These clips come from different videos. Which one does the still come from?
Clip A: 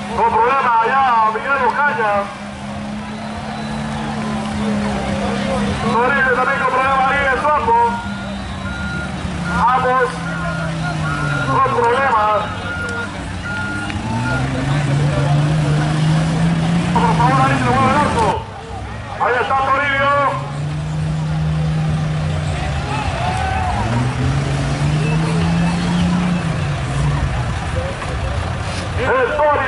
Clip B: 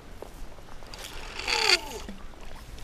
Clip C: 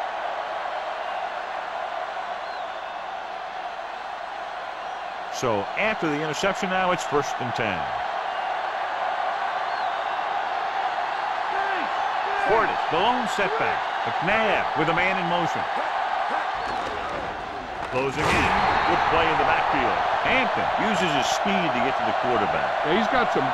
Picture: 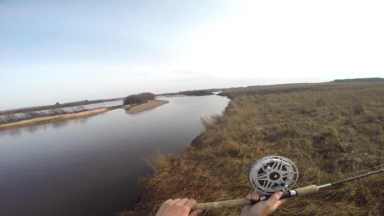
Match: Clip B